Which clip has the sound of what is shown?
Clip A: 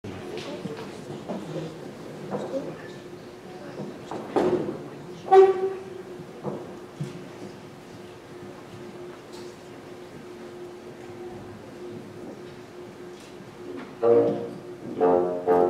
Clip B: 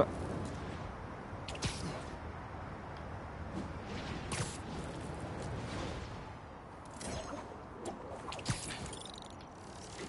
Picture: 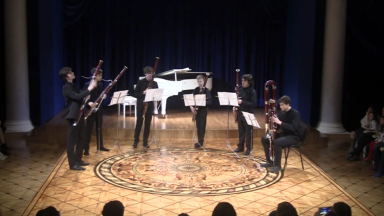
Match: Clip A